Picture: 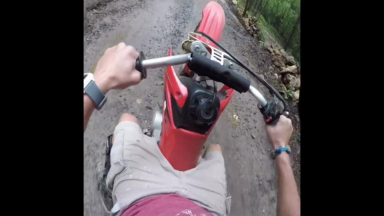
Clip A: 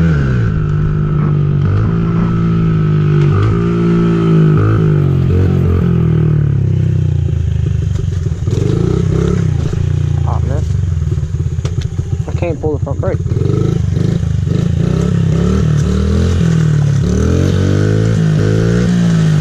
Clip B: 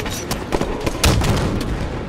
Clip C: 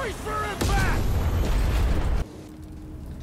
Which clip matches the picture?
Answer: A